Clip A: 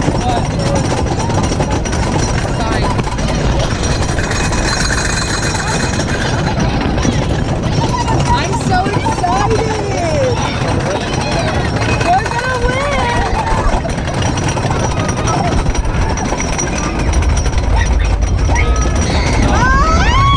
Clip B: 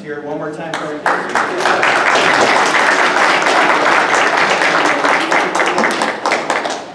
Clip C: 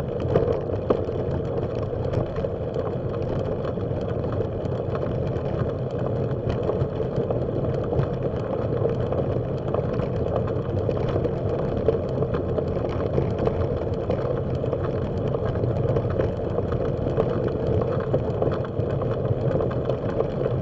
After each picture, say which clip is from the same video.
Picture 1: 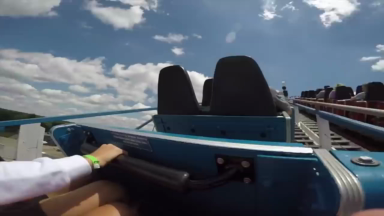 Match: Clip A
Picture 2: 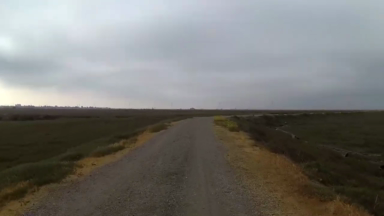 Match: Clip C